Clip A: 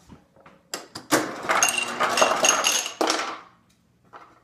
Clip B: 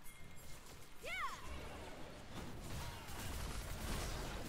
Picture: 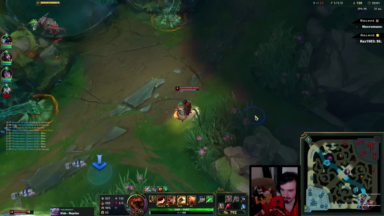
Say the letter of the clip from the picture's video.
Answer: B